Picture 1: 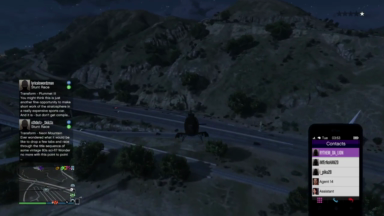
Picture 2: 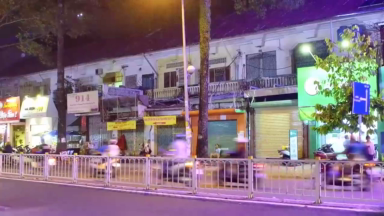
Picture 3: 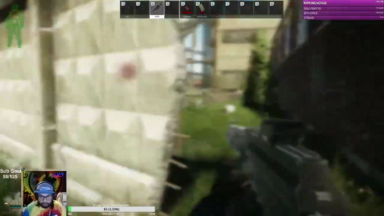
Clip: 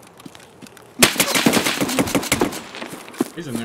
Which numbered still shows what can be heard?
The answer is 3